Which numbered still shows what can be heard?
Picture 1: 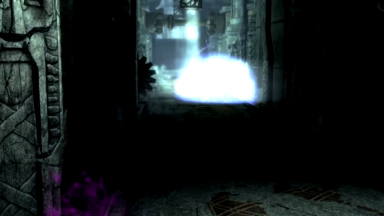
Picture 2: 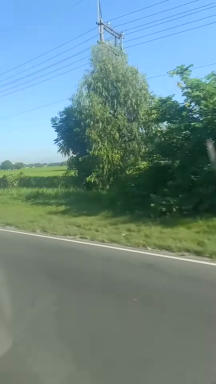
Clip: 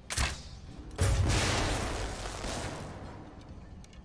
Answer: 1